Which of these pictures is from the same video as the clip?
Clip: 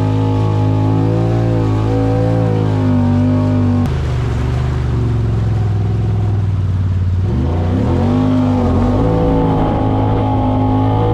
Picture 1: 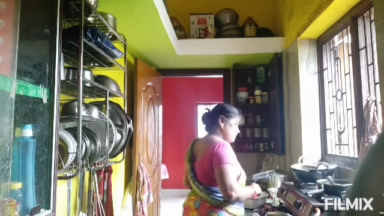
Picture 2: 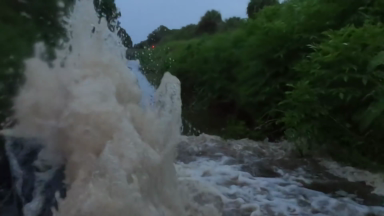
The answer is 2